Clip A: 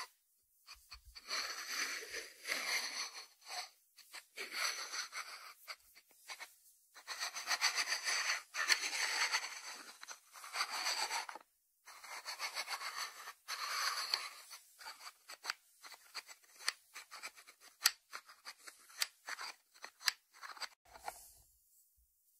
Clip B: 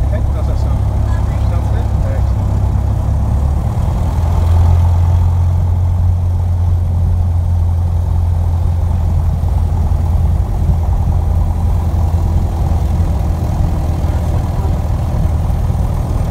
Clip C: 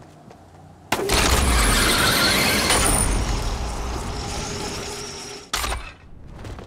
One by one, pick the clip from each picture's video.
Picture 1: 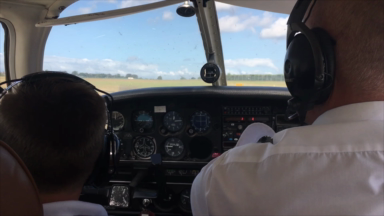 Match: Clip B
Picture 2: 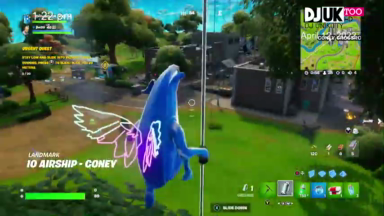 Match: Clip C